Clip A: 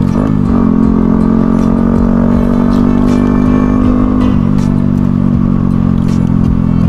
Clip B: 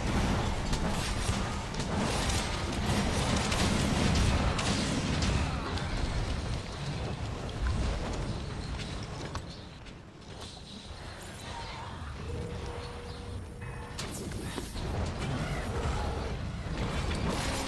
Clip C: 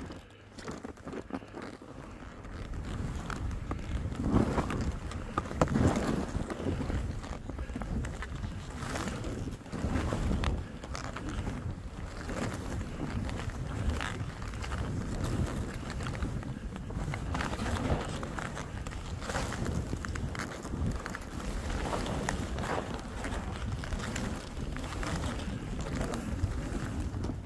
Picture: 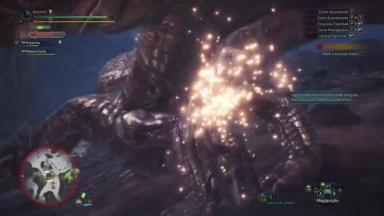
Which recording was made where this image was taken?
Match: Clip B